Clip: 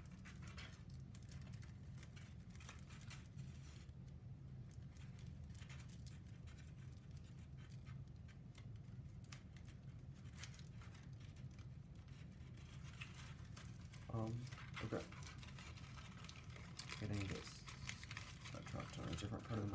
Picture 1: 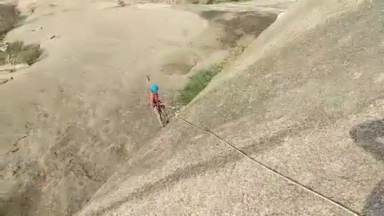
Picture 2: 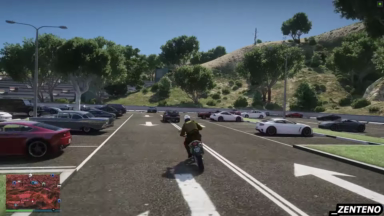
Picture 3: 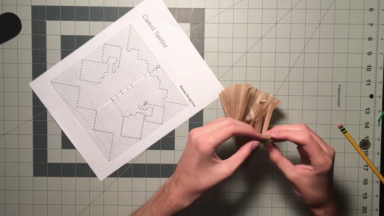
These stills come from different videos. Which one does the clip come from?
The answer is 3